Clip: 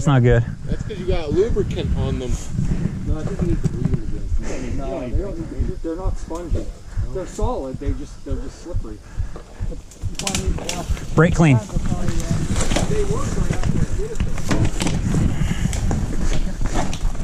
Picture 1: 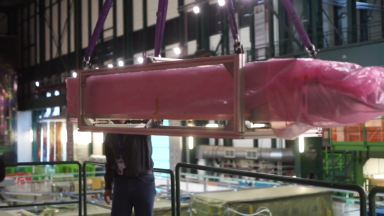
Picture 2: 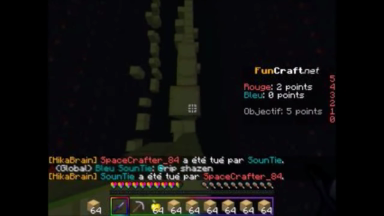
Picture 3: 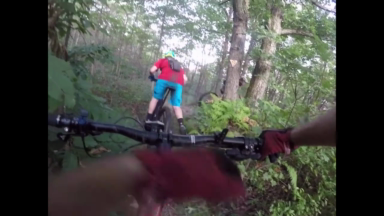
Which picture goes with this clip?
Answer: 3